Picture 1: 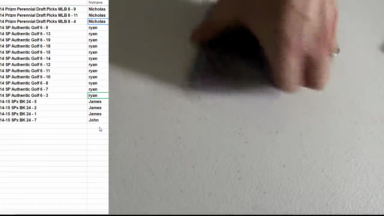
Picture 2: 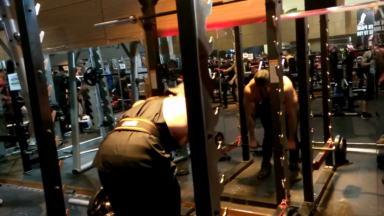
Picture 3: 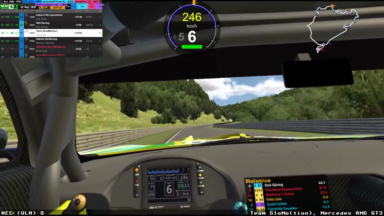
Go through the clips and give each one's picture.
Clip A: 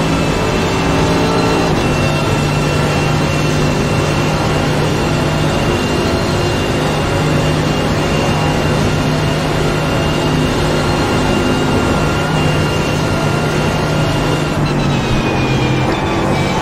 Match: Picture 3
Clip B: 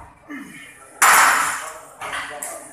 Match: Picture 2